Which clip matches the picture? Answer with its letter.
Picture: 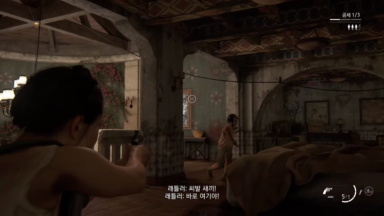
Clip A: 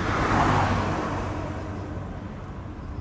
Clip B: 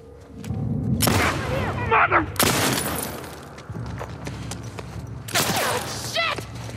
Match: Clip B